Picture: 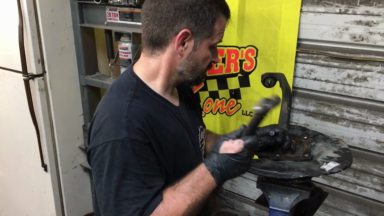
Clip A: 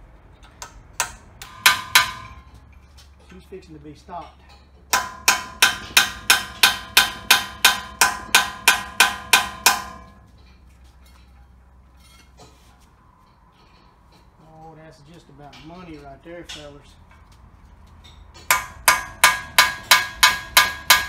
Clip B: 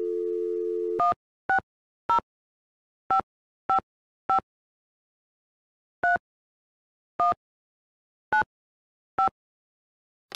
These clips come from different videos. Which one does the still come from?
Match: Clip A